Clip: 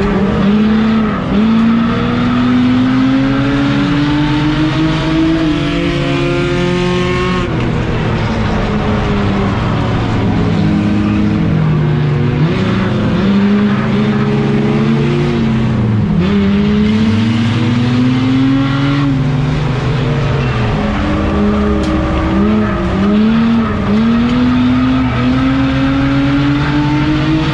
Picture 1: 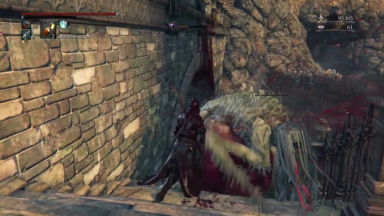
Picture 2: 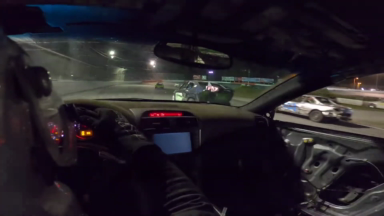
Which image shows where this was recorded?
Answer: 2